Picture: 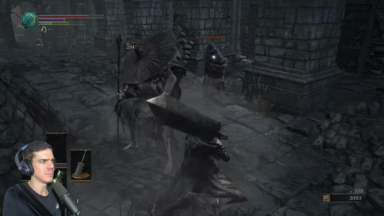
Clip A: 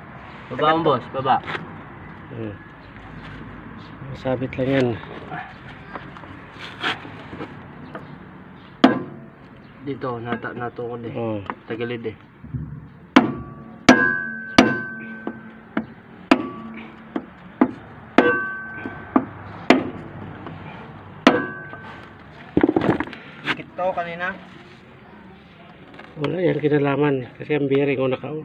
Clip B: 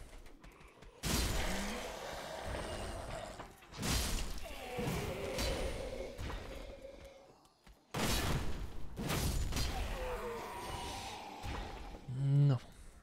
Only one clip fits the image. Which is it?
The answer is B